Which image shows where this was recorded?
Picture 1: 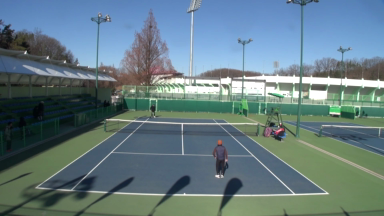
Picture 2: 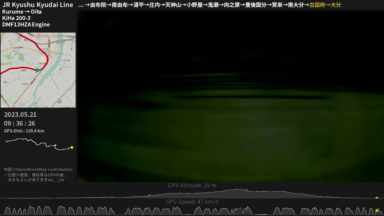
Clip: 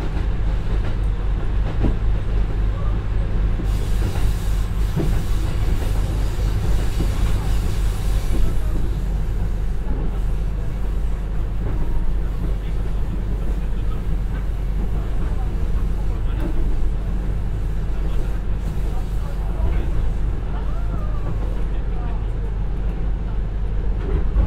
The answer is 2